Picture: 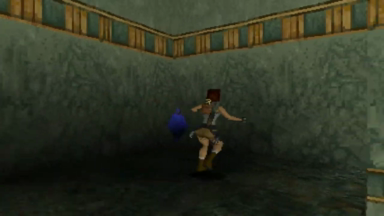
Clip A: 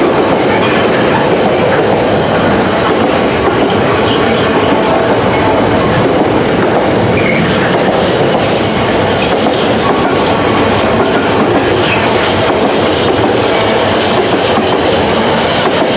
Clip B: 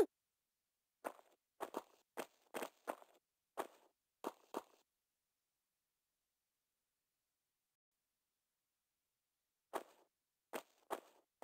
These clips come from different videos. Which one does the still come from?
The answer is B